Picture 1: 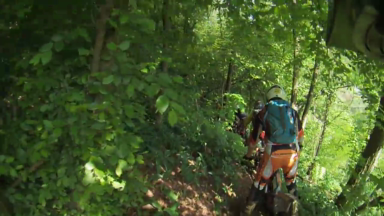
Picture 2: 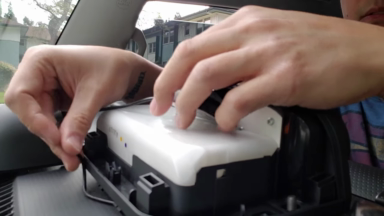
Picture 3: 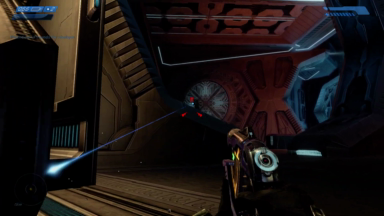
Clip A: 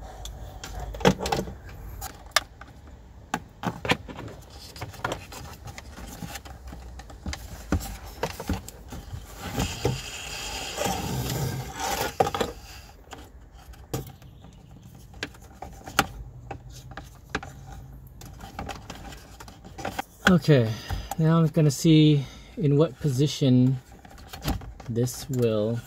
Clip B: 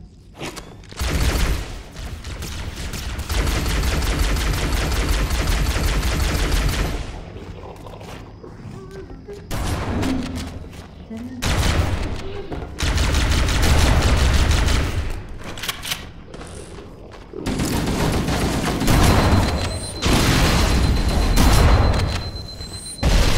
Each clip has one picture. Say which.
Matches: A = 2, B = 3